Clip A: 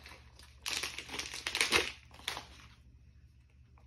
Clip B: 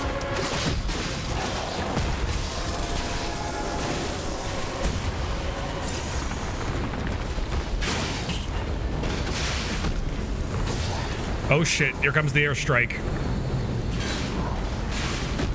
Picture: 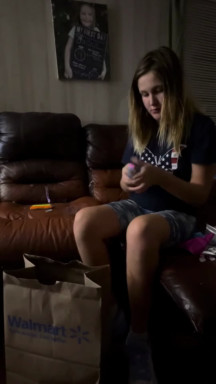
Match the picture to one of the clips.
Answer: A